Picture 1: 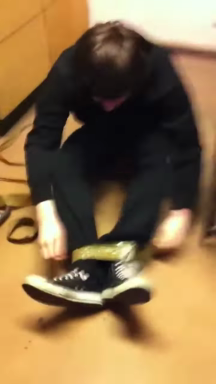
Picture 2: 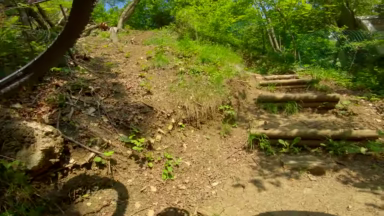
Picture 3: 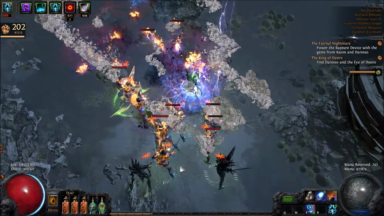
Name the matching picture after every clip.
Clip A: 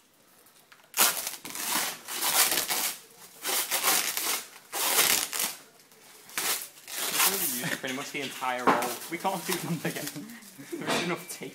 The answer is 1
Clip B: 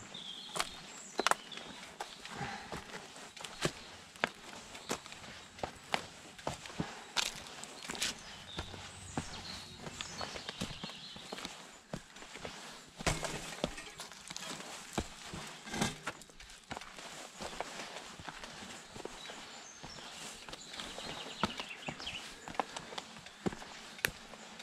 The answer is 2